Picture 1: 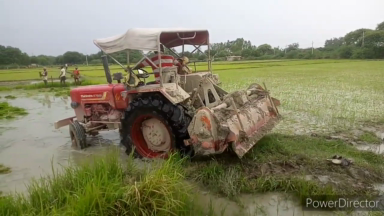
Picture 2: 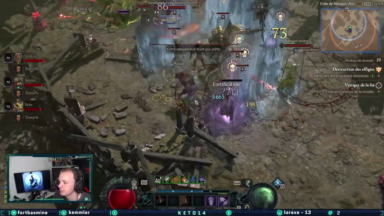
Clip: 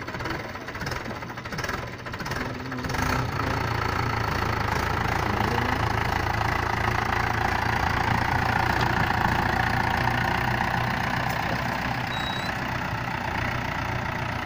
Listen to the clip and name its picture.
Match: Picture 1